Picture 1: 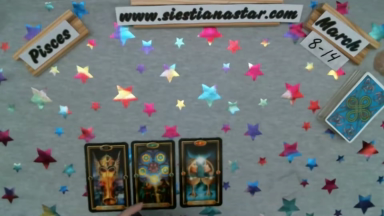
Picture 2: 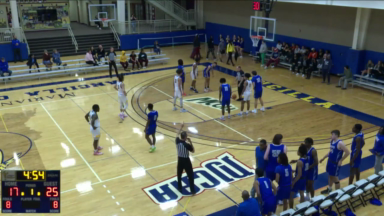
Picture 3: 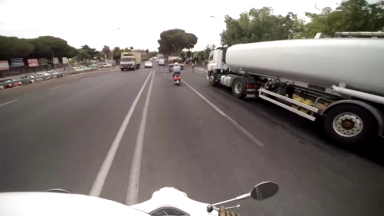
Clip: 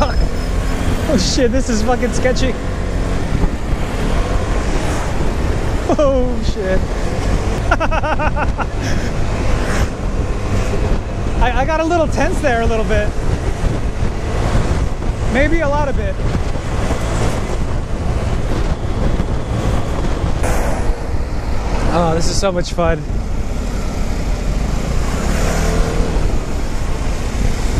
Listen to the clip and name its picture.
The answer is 3